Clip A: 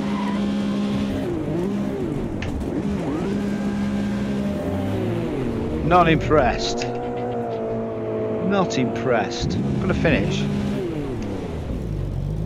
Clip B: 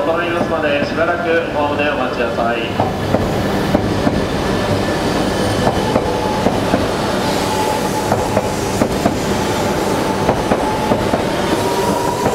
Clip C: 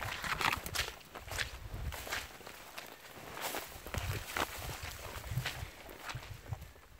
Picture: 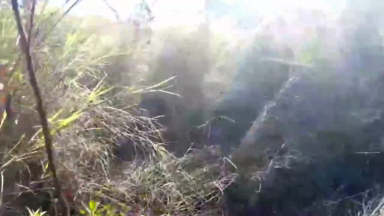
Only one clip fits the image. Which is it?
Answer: C